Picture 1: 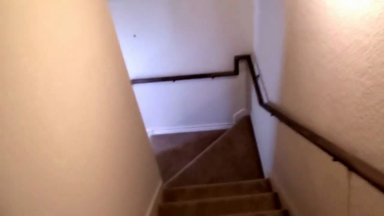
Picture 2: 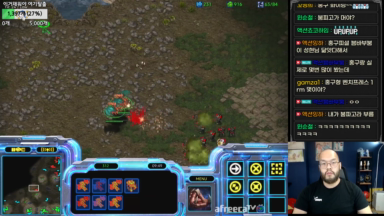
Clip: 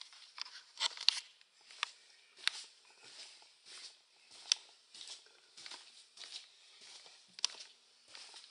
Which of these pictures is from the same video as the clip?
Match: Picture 1